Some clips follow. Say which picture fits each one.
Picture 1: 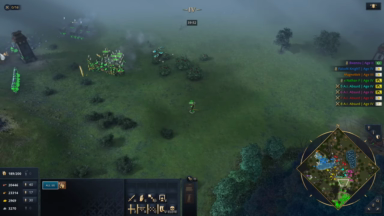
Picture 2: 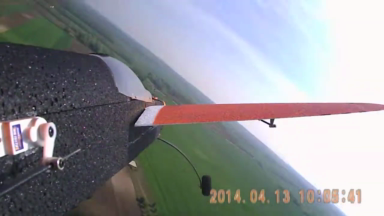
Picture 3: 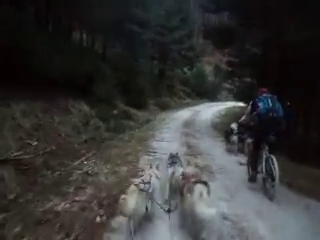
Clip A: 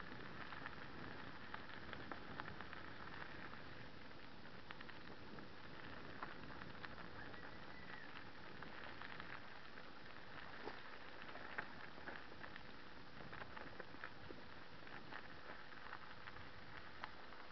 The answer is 3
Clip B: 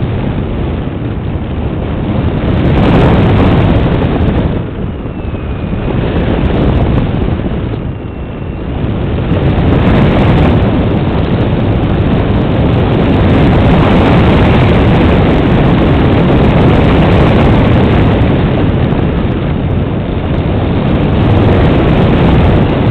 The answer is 2